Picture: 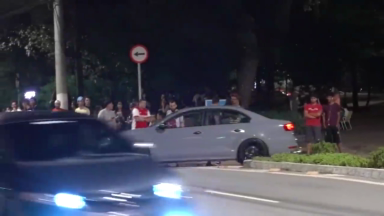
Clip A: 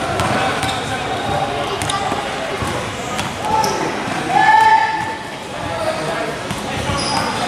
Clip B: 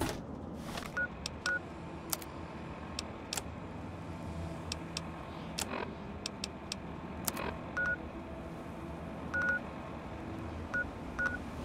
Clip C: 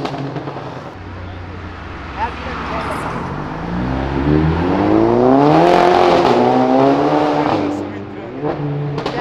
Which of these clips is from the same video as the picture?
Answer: C